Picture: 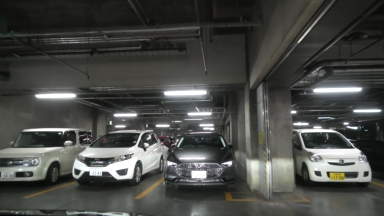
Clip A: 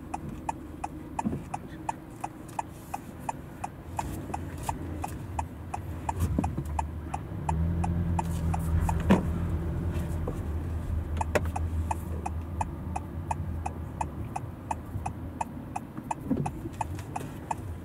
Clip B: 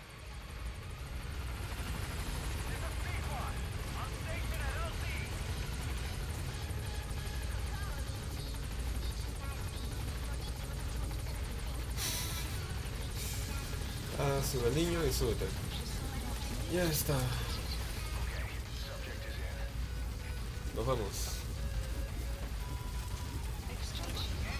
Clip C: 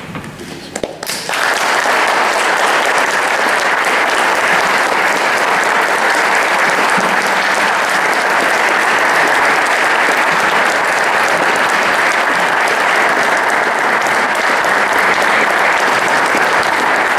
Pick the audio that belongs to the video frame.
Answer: A